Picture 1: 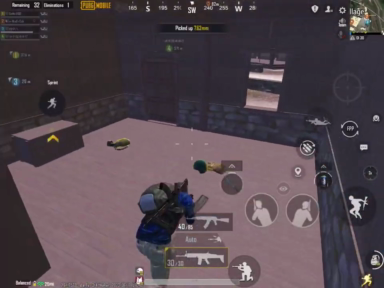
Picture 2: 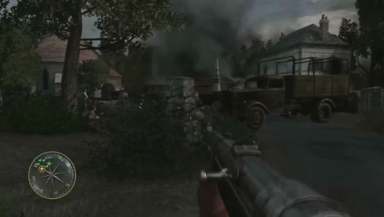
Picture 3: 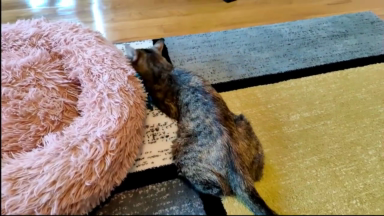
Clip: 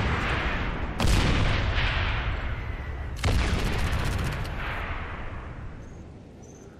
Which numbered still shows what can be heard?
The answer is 2